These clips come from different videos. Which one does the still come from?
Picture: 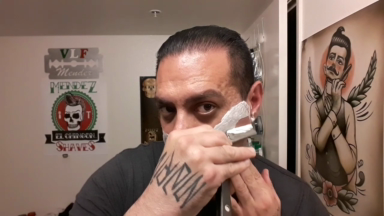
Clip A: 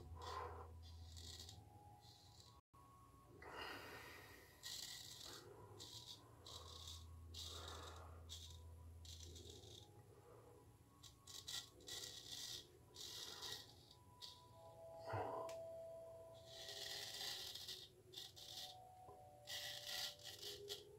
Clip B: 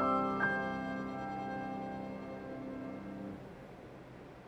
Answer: A